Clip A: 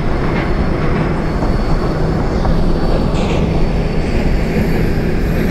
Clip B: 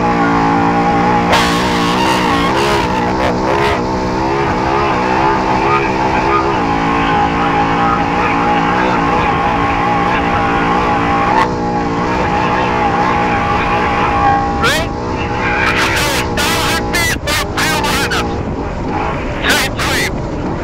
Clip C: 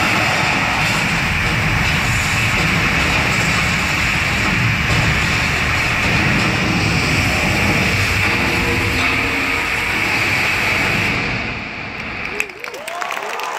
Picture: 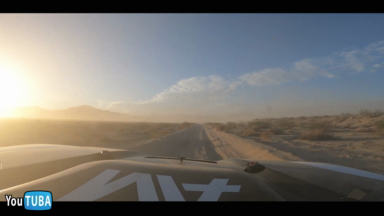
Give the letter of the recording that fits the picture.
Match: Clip B